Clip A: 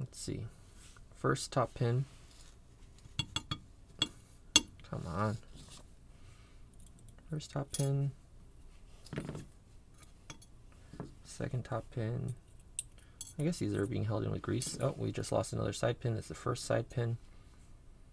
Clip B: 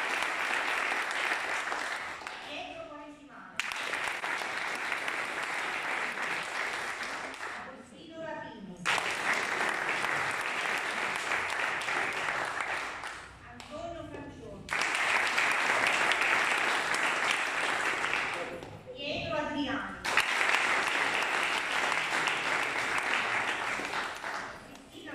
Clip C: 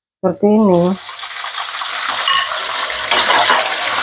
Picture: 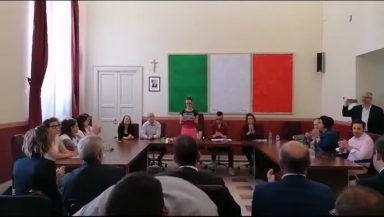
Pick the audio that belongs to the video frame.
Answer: B